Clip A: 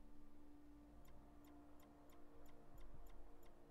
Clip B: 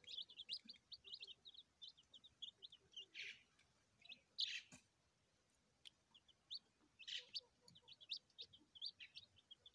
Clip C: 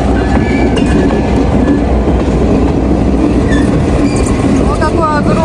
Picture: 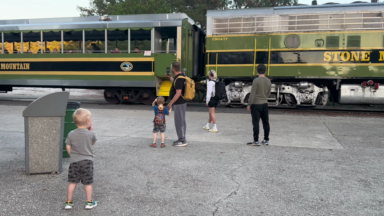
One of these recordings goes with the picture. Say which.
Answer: C